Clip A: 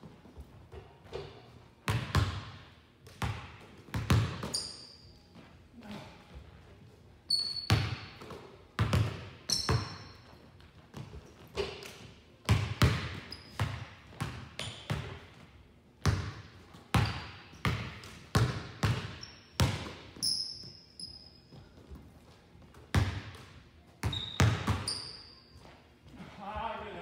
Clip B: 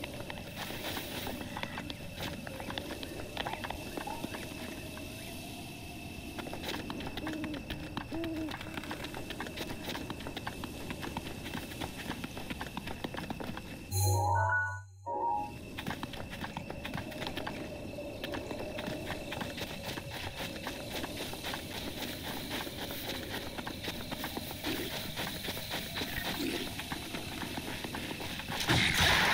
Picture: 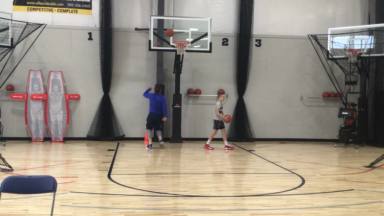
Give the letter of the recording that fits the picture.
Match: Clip A